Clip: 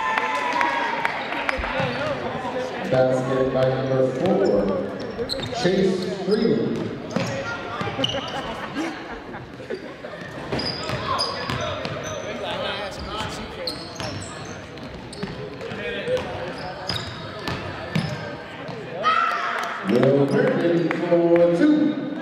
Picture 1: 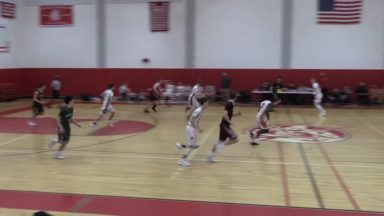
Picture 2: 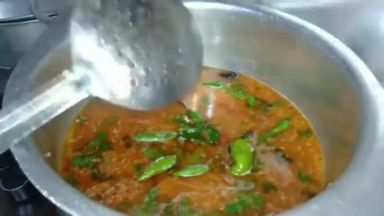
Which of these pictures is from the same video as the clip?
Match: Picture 1